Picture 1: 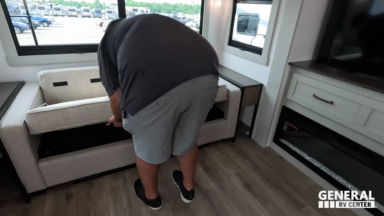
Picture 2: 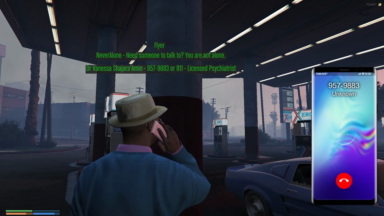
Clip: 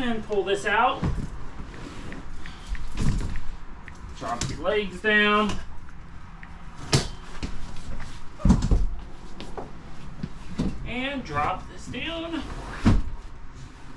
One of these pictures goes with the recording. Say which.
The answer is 1